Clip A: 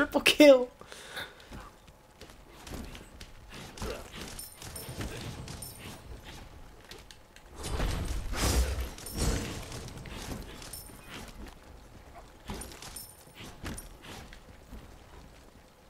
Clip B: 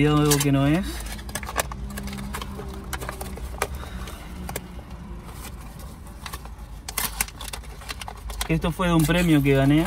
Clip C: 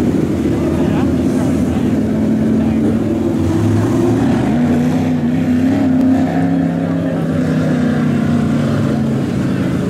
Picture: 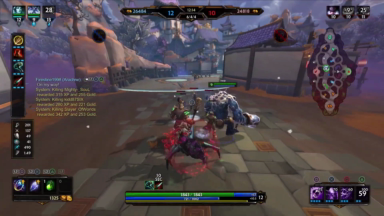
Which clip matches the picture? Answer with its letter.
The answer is A